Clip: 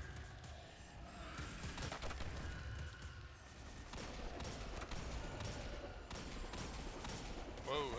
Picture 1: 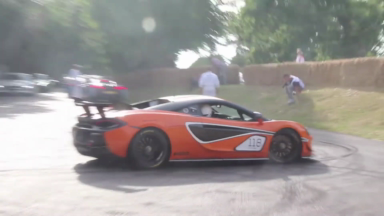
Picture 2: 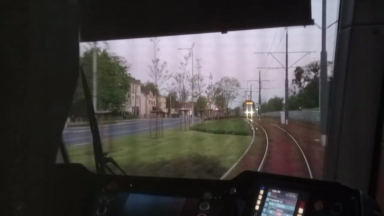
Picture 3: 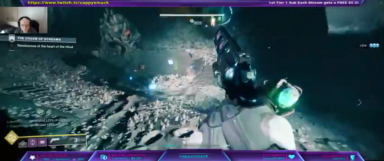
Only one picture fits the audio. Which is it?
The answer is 3